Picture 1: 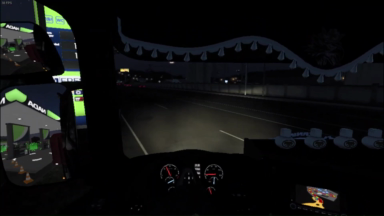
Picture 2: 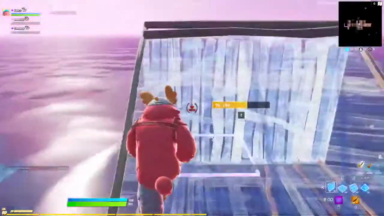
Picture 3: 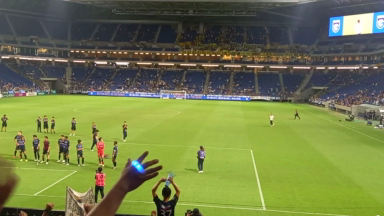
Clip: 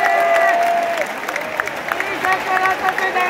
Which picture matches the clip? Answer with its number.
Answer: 3